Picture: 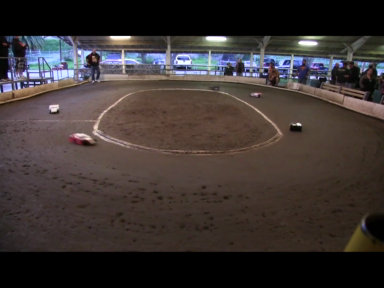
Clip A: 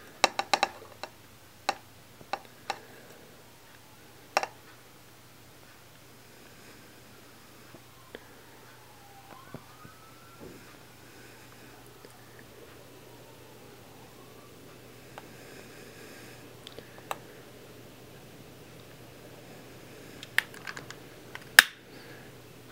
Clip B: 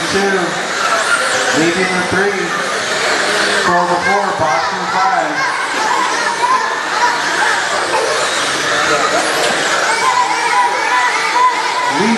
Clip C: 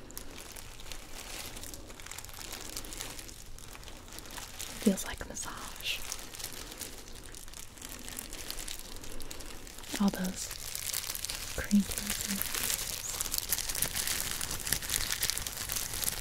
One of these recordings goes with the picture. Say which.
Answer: B